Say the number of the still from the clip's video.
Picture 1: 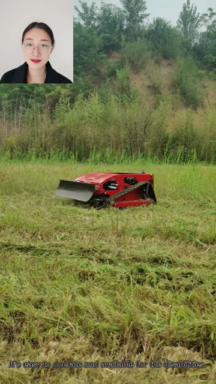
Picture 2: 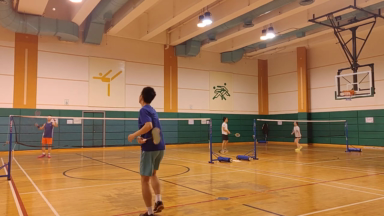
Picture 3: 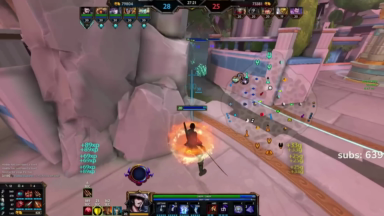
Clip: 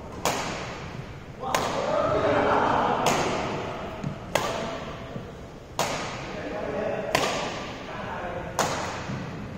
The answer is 2